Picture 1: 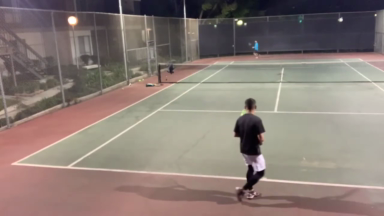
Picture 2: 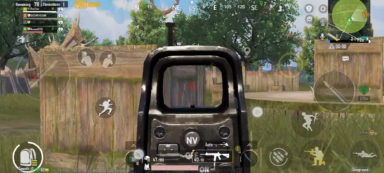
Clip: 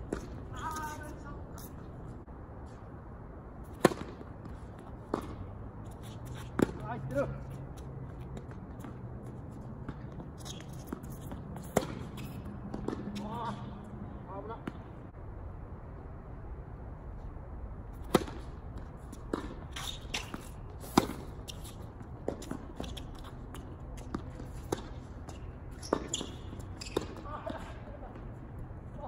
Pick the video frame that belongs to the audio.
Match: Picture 1